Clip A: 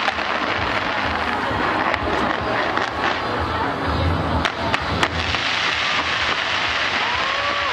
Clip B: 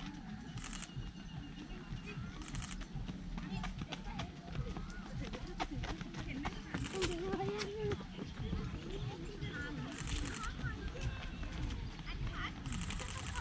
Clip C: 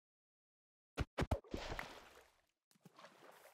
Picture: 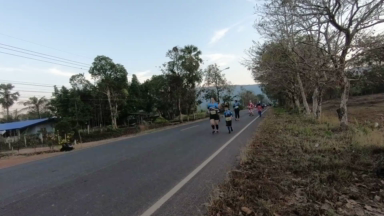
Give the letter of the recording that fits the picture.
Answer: B